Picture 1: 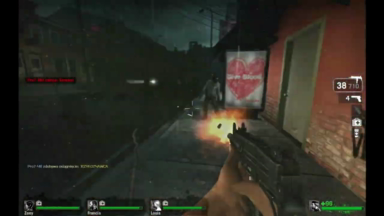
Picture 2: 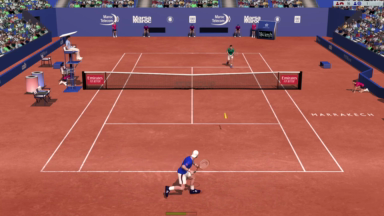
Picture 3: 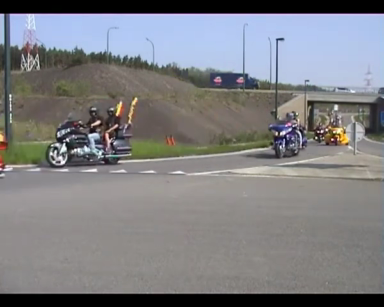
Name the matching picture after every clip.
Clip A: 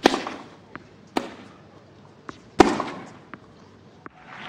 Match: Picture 2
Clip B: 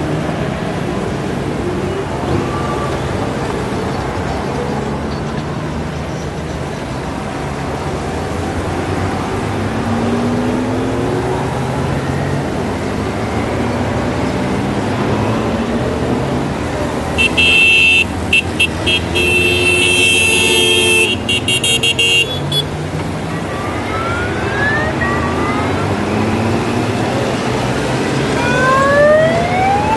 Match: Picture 3